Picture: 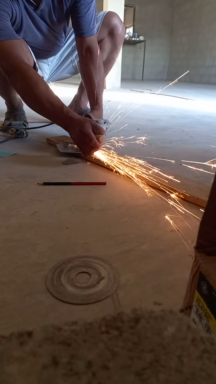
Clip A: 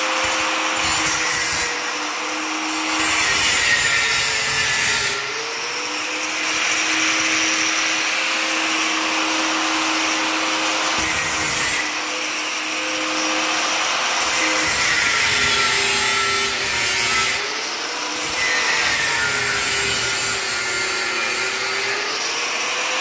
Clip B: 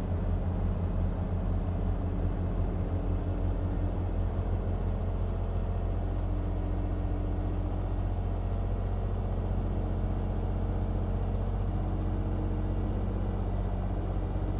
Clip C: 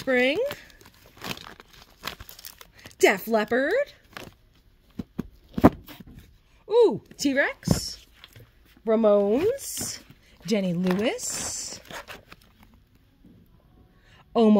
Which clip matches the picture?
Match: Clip A